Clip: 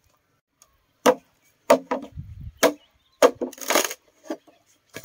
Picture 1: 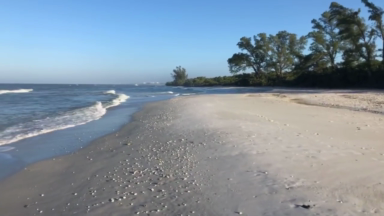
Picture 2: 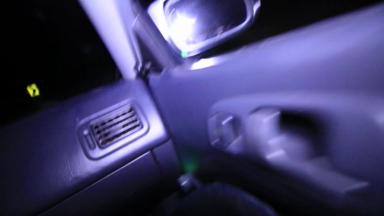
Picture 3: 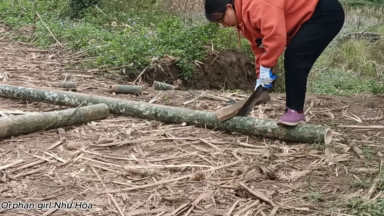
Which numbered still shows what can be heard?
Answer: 3